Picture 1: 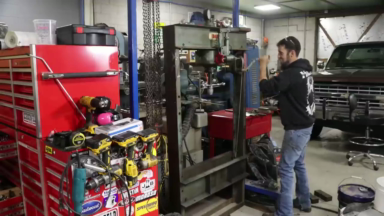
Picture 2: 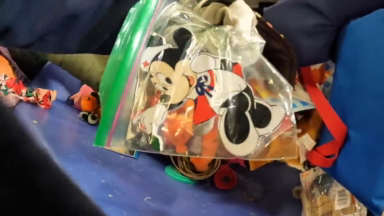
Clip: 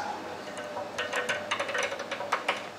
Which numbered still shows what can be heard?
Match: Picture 1